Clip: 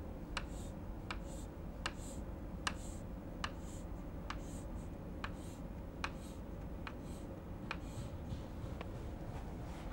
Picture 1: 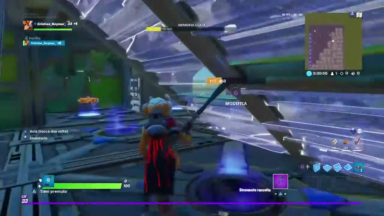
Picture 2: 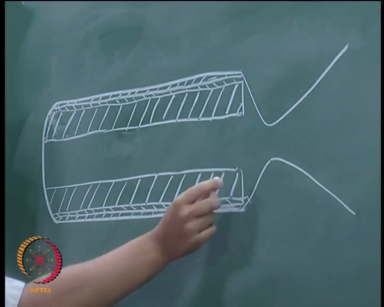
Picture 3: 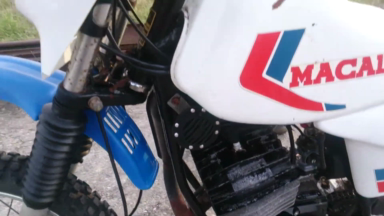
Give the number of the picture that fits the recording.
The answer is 2